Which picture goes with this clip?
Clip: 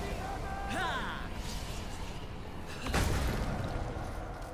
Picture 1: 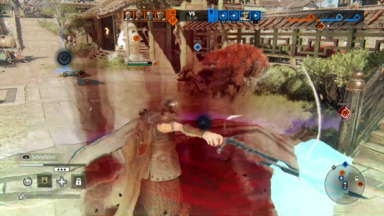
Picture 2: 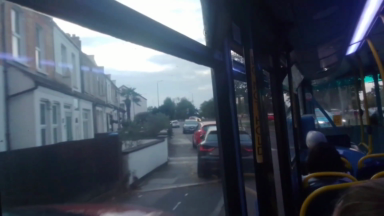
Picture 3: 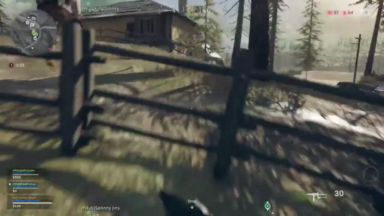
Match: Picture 1